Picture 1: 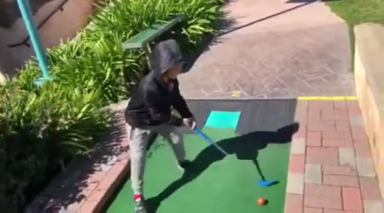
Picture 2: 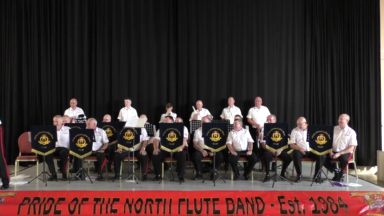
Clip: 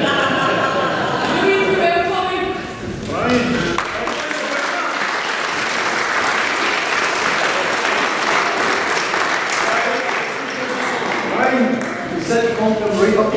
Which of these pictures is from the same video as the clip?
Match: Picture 2